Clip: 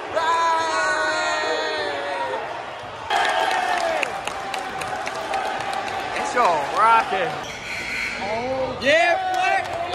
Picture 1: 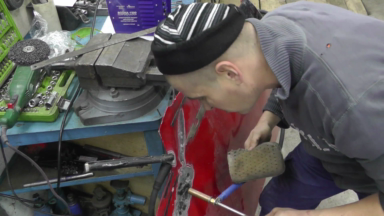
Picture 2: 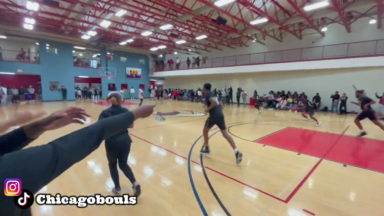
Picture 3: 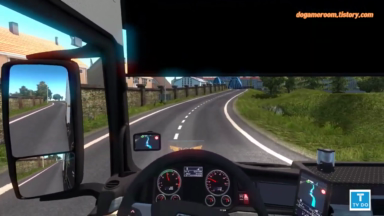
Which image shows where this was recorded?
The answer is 2